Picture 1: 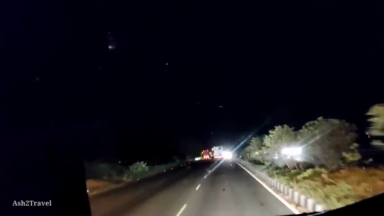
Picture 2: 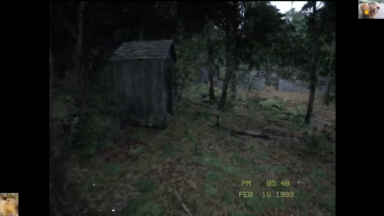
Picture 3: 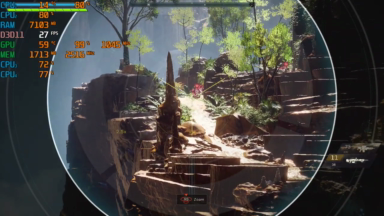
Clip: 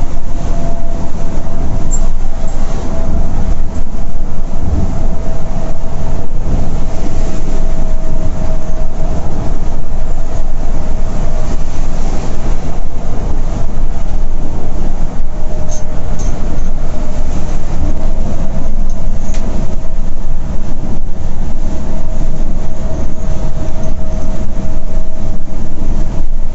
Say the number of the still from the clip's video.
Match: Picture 1